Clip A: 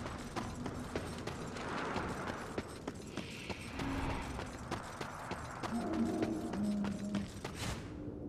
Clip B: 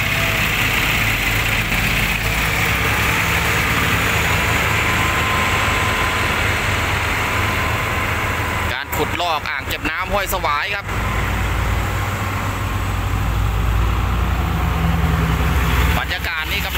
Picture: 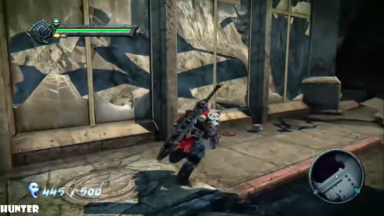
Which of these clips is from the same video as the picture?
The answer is A